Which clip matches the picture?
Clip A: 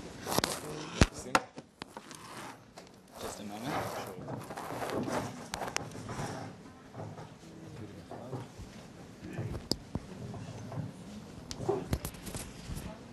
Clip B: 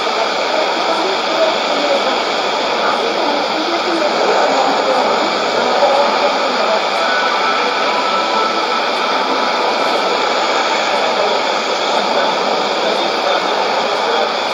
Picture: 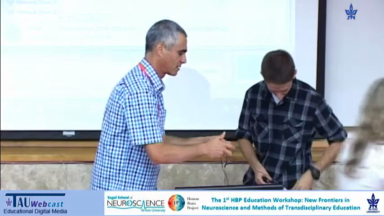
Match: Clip A